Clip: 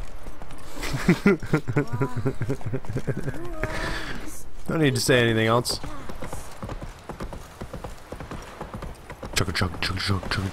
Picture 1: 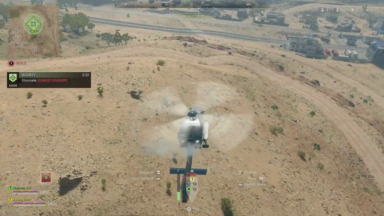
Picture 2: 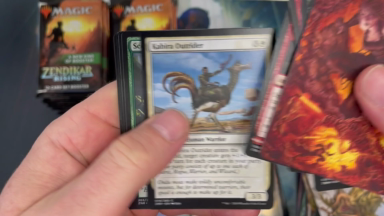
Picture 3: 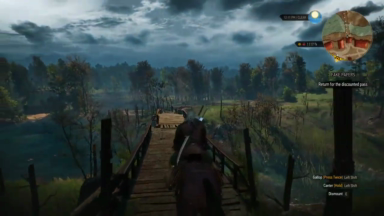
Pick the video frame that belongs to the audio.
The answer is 3